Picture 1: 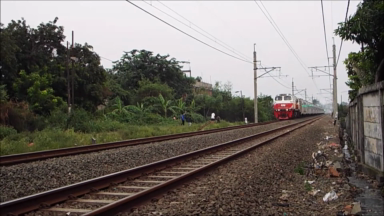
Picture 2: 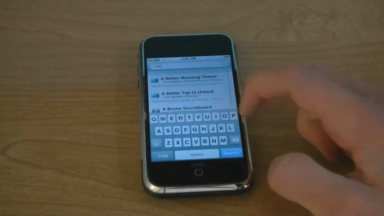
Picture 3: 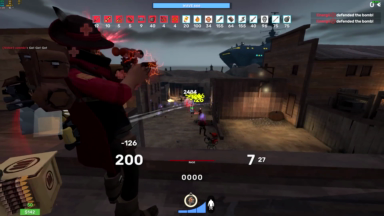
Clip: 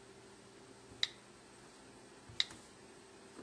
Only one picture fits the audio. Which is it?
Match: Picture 2